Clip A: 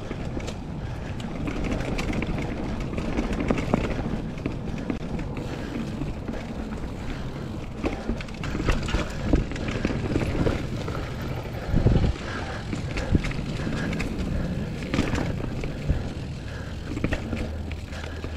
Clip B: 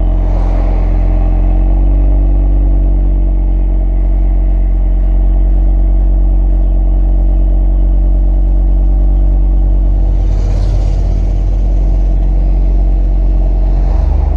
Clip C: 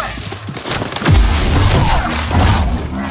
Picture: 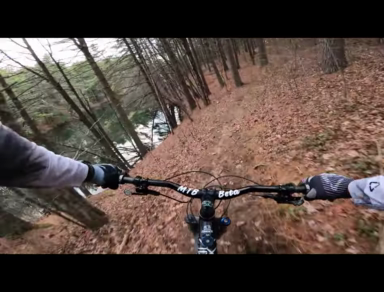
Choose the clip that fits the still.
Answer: A